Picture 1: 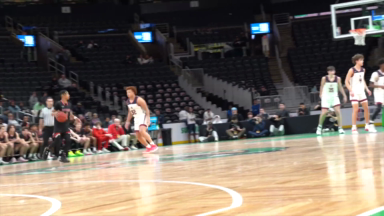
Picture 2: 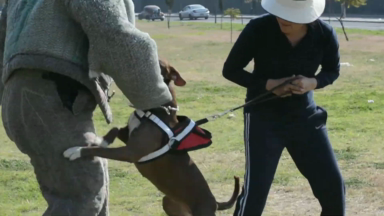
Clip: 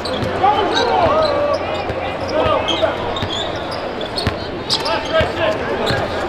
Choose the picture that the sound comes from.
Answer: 1